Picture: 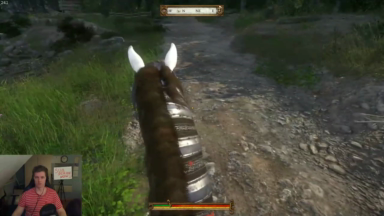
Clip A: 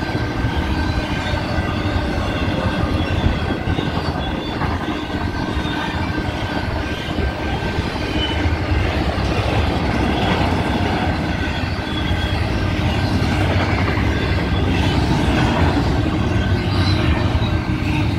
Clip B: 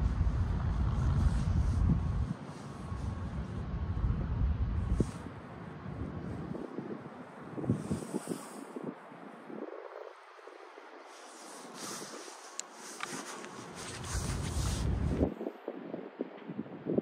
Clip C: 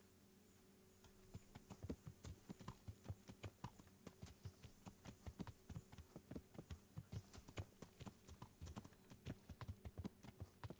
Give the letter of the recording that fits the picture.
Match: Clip C